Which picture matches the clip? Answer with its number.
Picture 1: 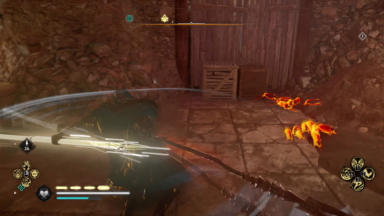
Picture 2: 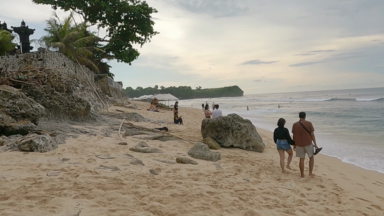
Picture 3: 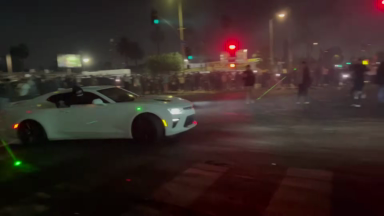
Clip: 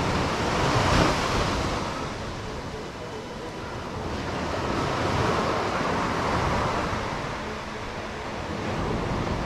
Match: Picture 2